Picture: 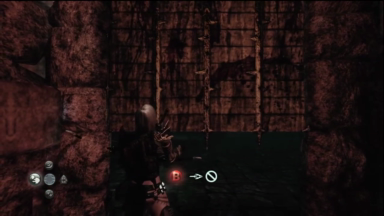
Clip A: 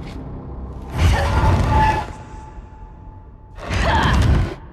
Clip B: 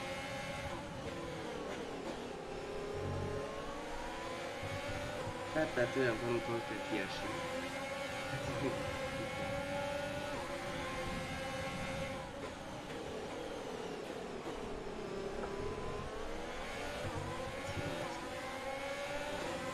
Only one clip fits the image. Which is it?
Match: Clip A